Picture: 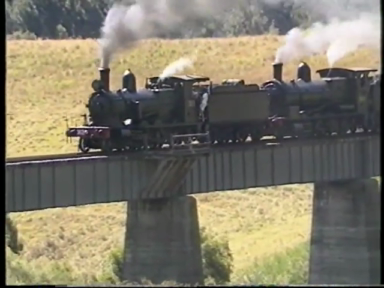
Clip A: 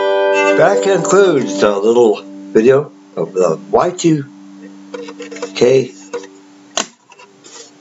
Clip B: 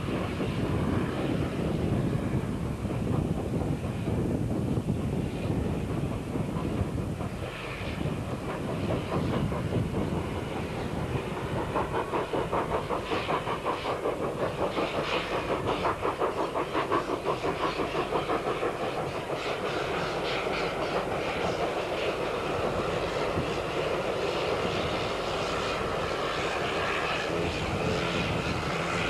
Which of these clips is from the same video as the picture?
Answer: B